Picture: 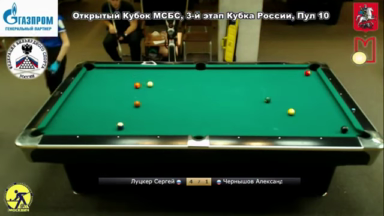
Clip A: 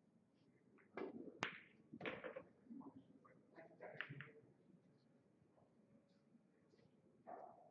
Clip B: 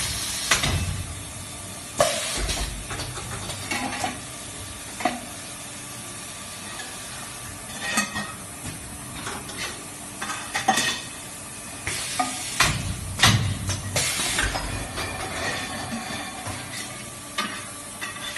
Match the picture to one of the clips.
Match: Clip A